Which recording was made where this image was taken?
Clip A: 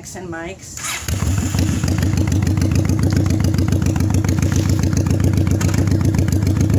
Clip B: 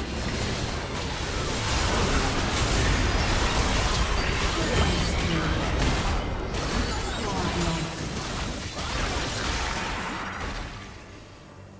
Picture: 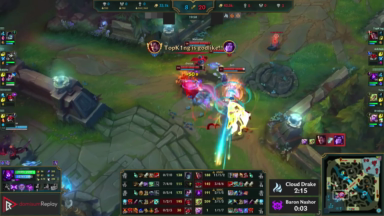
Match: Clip B